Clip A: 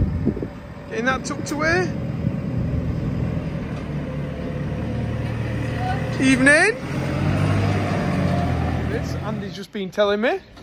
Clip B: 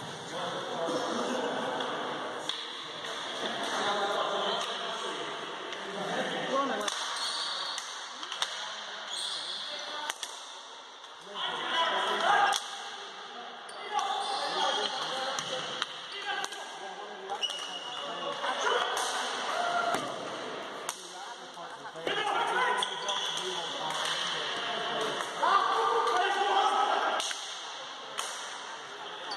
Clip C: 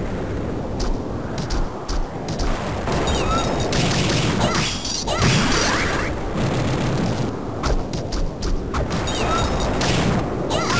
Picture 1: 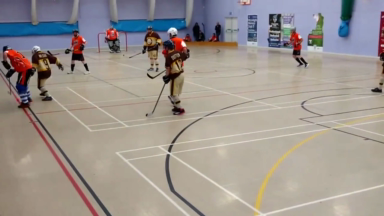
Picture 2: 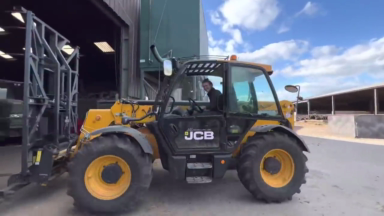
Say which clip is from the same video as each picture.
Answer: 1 B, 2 A